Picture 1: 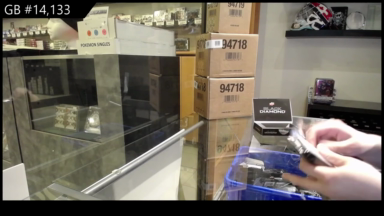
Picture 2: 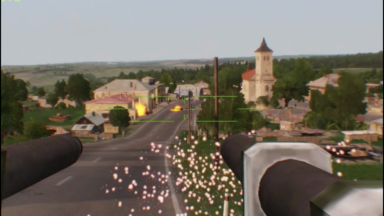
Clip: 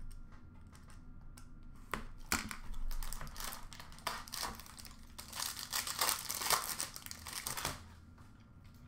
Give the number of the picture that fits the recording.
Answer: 1